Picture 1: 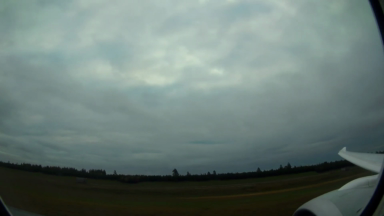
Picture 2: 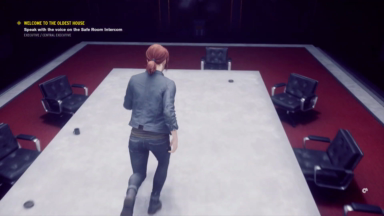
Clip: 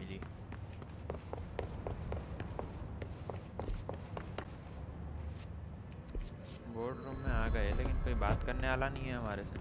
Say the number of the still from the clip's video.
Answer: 2